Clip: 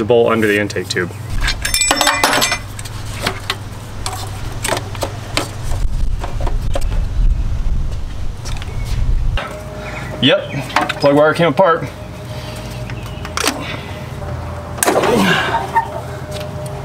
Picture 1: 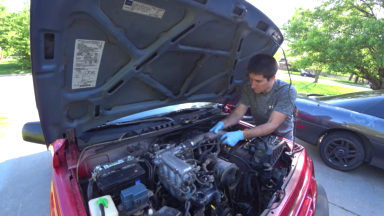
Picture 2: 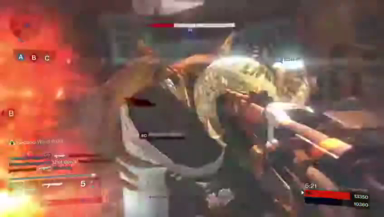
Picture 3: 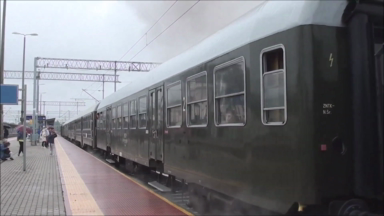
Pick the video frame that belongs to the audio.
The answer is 1